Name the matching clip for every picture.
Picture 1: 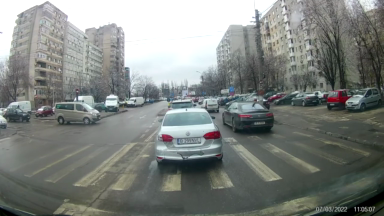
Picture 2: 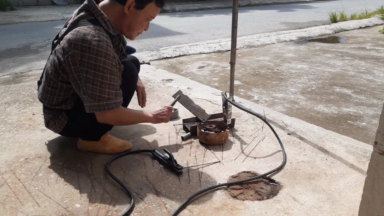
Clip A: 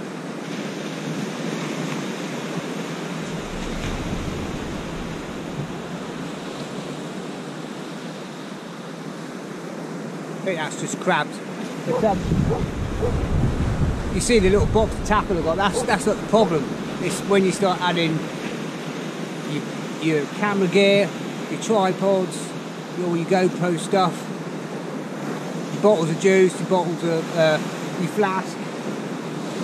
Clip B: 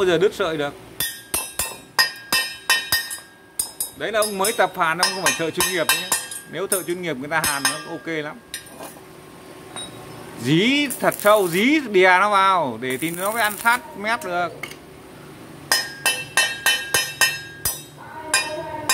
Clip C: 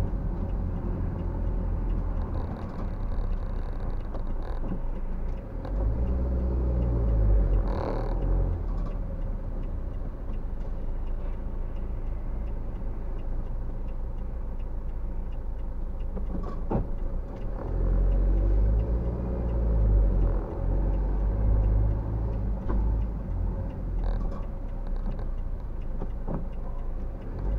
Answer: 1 C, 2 B